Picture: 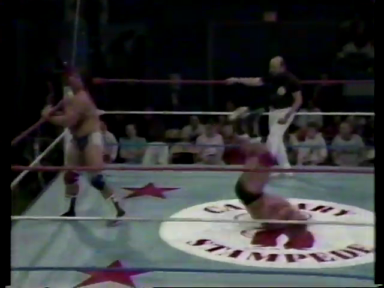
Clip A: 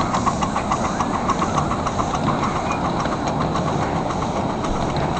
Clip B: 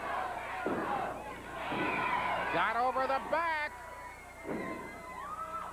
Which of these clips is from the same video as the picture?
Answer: B